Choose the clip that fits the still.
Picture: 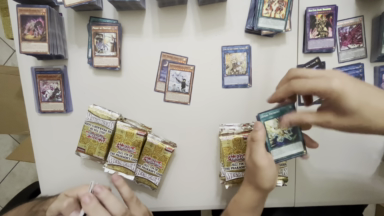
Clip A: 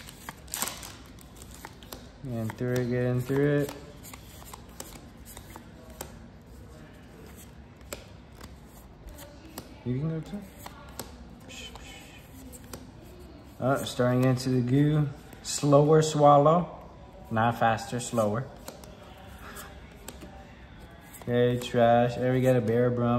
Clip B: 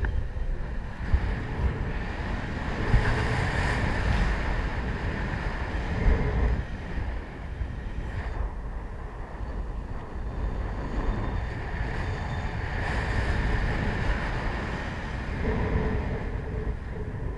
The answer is A